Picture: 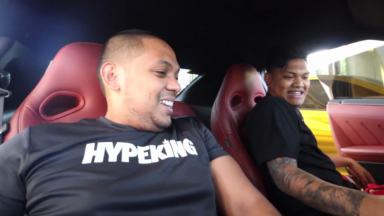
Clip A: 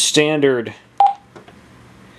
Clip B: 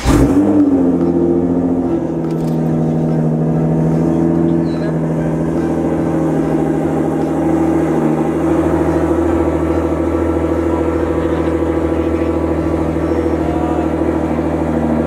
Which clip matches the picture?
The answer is B